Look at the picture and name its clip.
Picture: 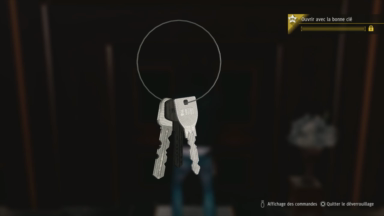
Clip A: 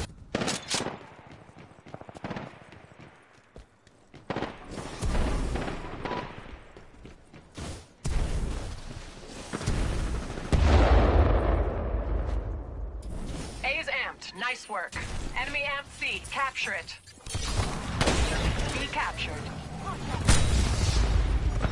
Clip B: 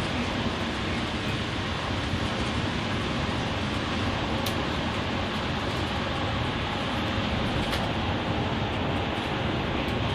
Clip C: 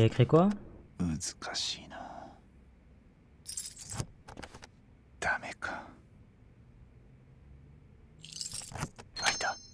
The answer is C